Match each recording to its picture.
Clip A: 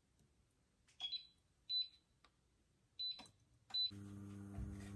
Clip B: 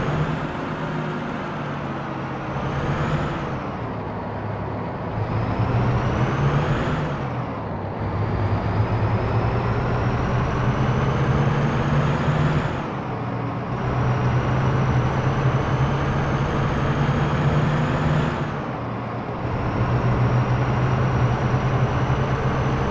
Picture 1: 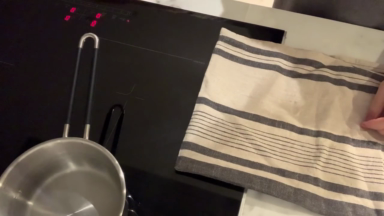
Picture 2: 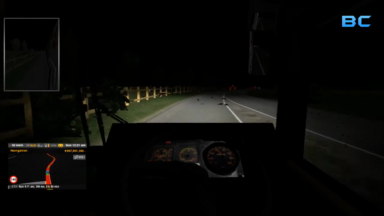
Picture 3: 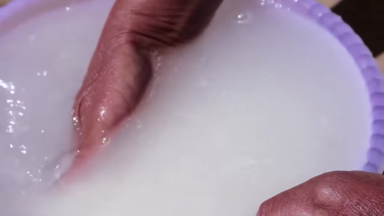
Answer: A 1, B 2